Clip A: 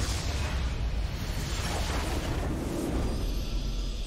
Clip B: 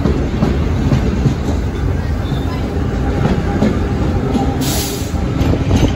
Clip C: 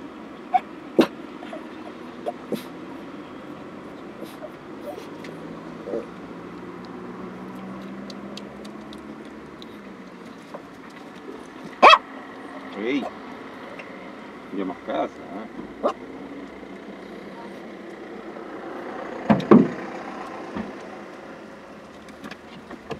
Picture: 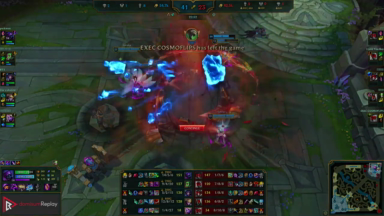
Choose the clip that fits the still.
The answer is A